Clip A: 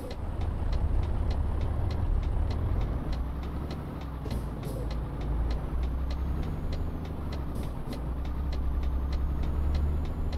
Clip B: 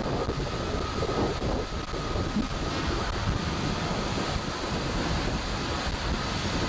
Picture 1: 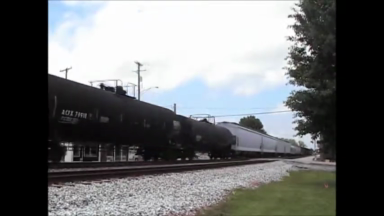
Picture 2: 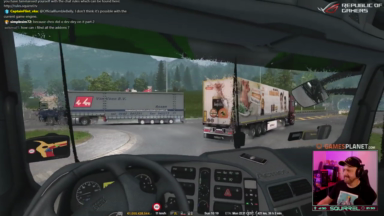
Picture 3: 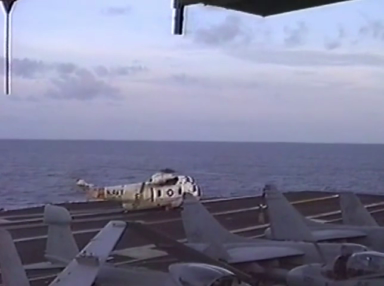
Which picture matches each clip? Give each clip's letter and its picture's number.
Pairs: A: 2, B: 3